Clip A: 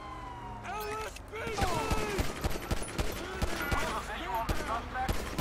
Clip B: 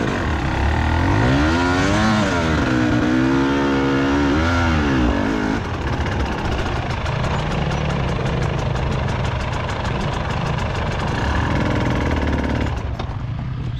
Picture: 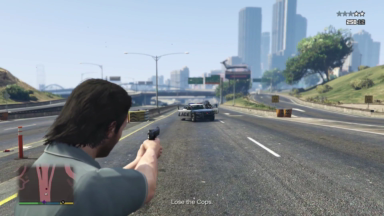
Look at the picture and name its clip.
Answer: A